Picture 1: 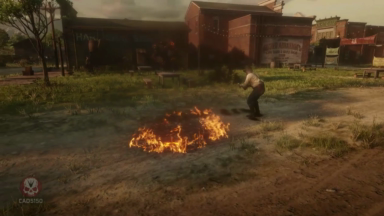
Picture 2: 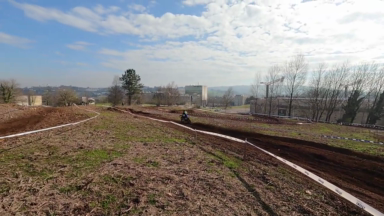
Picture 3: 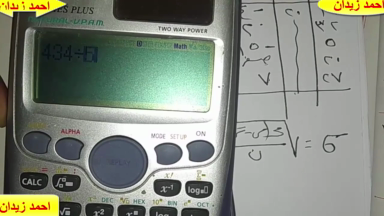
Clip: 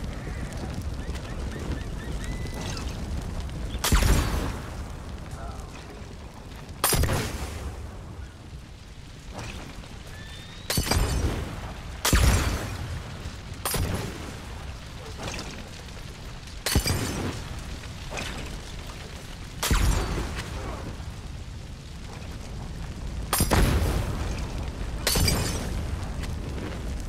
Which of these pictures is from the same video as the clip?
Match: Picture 1